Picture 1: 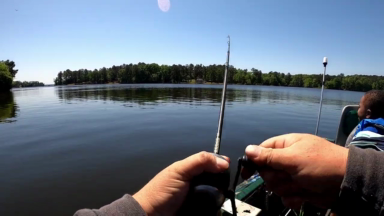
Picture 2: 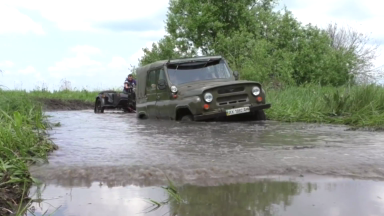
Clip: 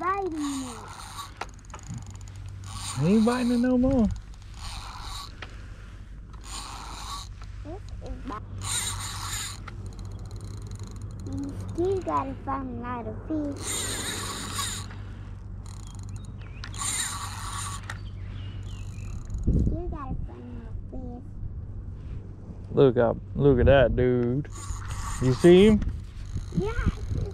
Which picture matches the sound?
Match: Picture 1